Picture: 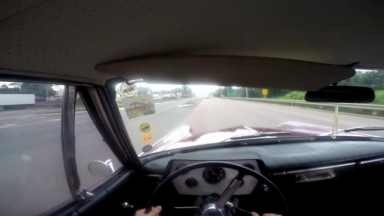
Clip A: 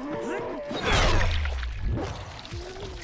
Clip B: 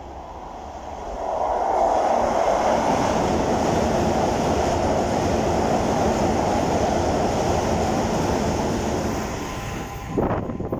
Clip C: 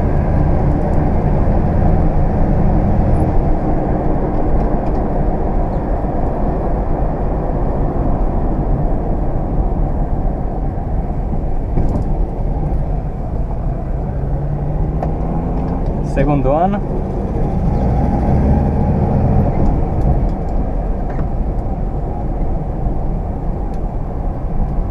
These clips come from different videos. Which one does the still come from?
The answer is C